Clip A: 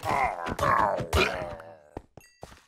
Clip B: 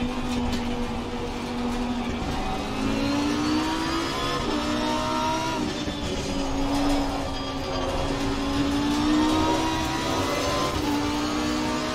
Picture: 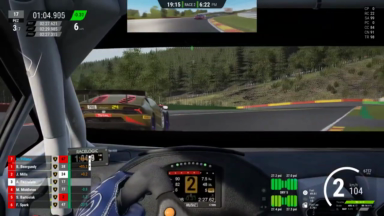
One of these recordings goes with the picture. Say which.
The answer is B